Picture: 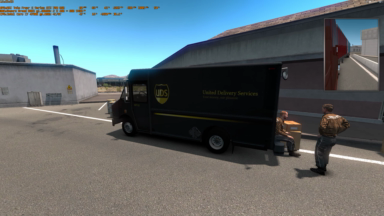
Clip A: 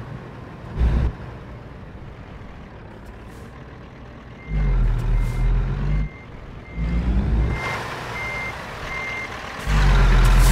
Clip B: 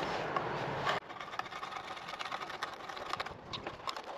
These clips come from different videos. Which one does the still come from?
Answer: A